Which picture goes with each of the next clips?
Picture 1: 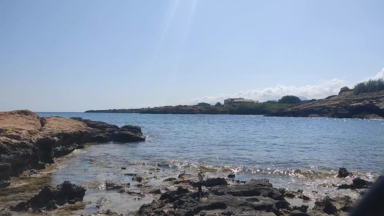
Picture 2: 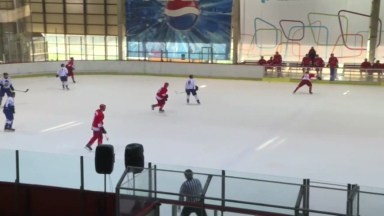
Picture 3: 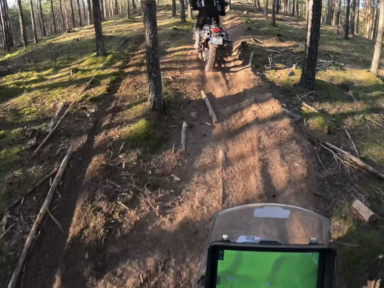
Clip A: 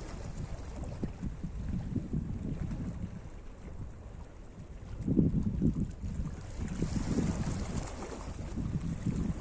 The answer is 1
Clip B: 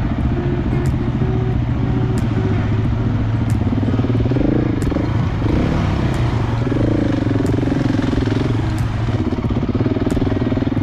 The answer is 3